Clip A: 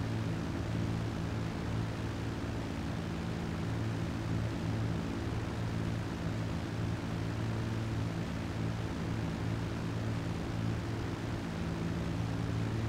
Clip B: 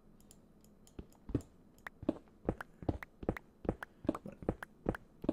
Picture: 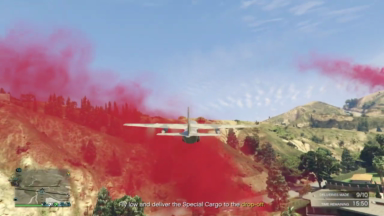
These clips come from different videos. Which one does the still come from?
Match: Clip A